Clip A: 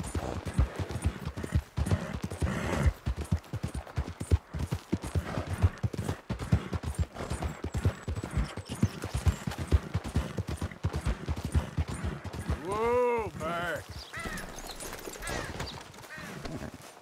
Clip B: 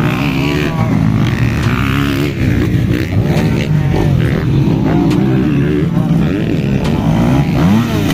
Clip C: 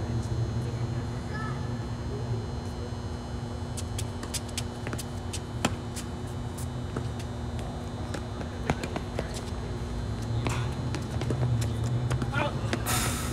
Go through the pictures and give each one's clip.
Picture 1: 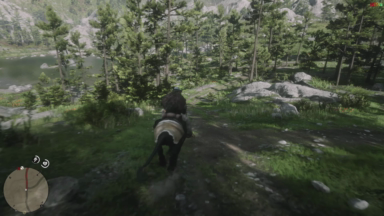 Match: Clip A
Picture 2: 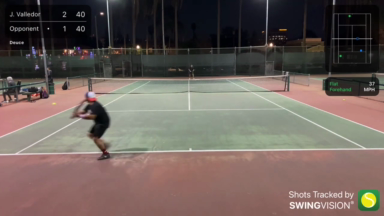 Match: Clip C